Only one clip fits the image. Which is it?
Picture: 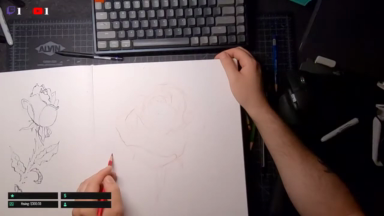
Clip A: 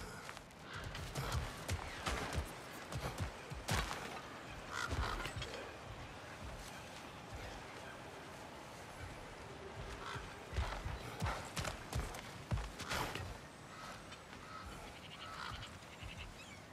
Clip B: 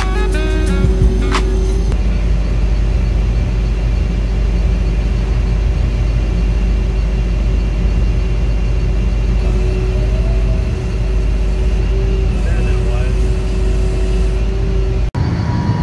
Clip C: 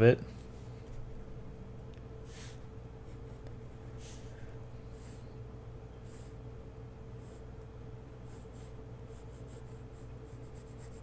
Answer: C